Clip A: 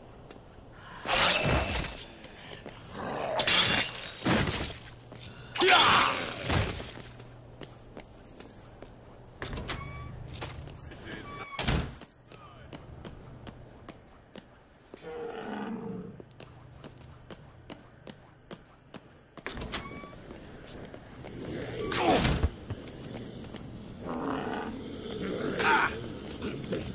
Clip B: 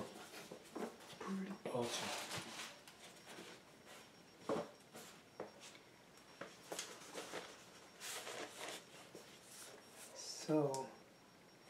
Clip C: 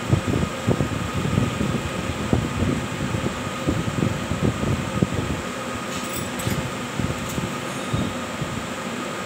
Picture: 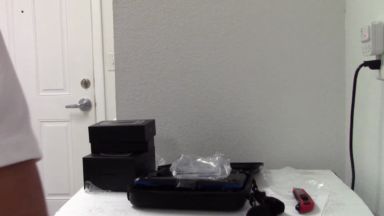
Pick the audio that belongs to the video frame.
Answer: B